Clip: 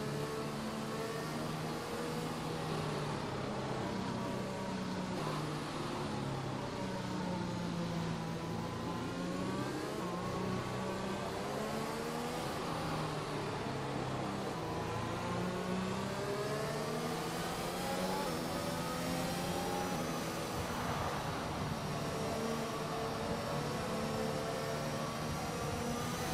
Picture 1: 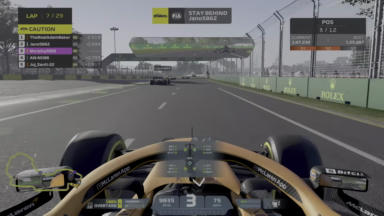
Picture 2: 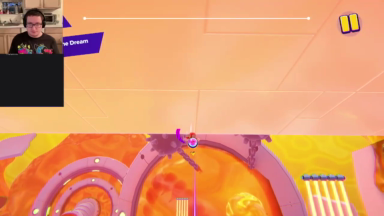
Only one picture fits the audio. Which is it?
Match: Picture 1